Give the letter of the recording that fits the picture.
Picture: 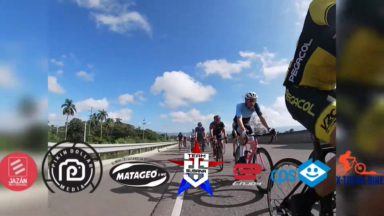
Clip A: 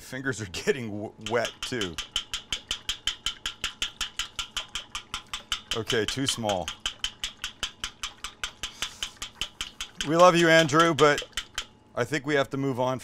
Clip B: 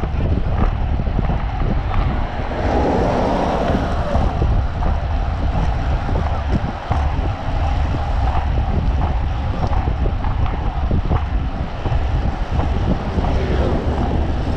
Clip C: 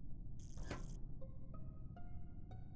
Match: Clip B